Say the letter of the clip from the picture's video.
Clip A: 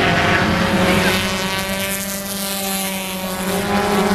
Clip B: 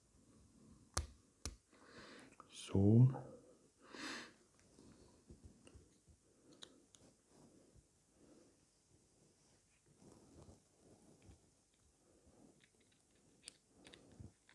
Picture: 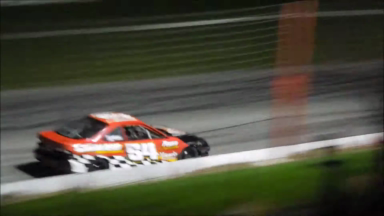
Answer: A